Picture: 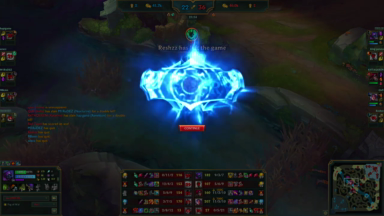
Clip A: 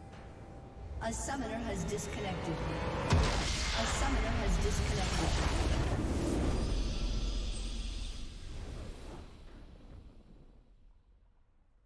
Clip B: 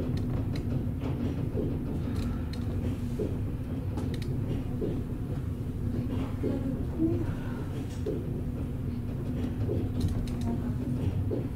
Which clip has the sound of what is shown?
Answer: A